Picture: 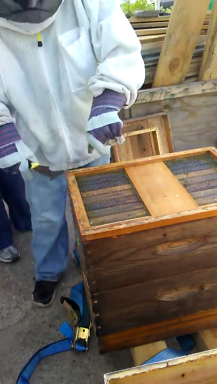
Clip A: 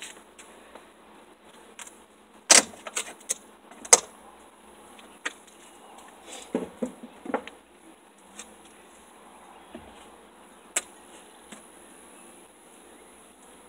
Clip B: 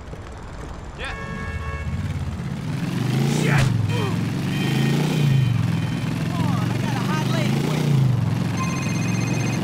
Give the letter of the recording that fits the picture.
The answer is A